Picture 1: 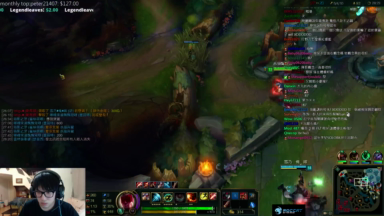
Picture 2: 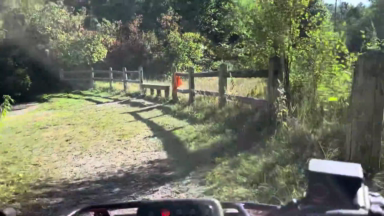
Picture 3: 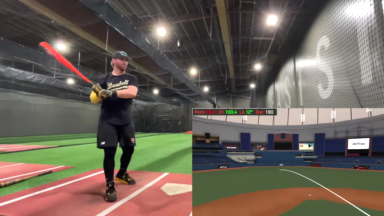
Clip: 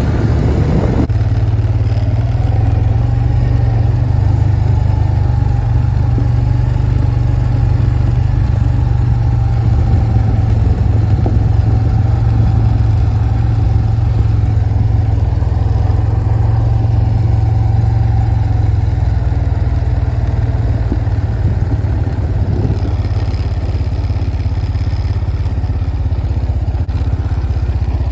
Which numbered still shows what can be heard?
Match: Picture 2